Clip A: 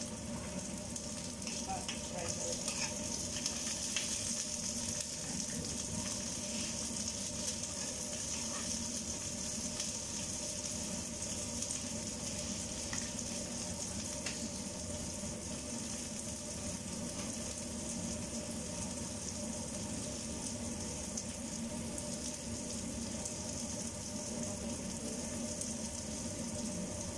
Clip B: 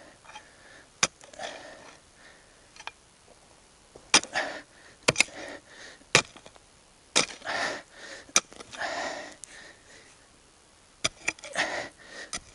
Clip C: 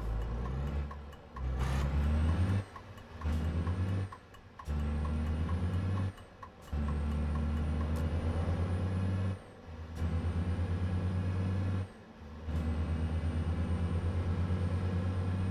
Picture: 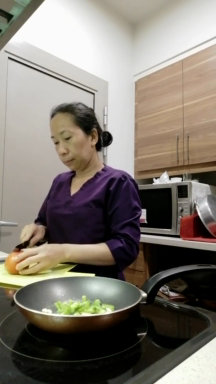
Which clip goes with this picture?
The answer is A